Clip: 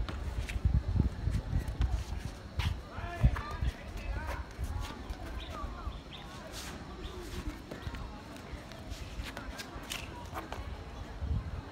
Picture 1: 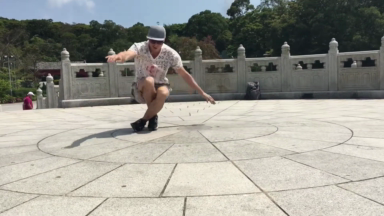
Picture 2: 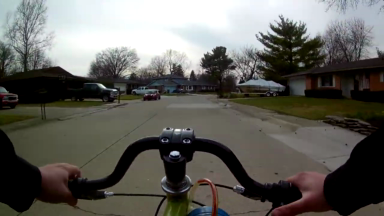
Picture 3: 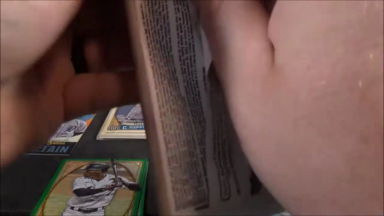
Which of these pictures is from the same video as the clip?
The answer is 1